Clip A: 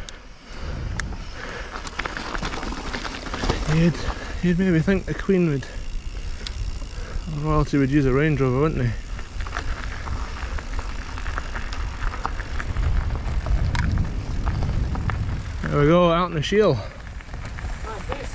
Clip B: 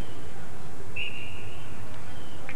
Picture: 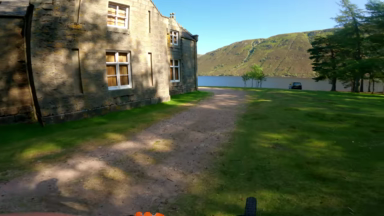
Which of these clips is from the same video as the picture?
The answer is A